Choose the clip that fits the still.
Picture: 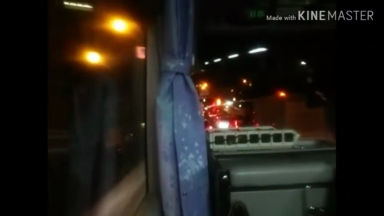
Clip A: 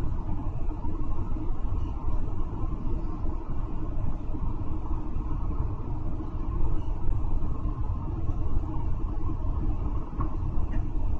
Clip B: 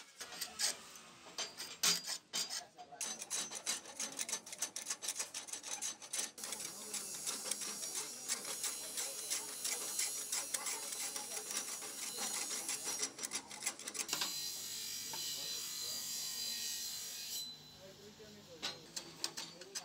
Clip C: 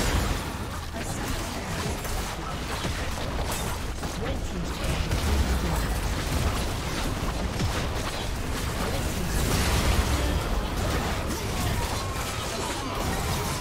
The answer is A